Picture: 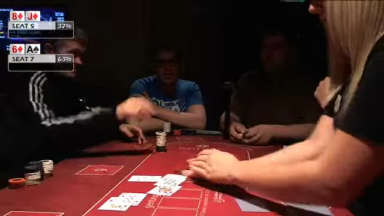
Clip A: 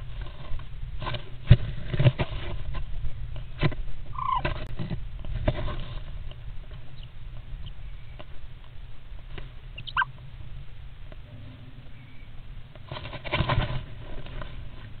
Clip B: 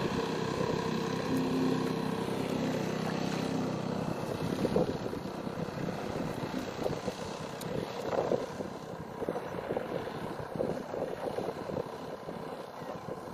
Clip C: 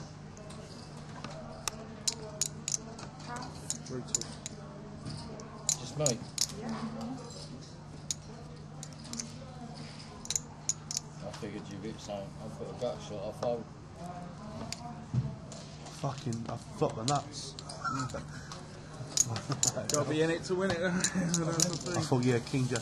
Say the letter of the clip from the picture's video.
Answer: C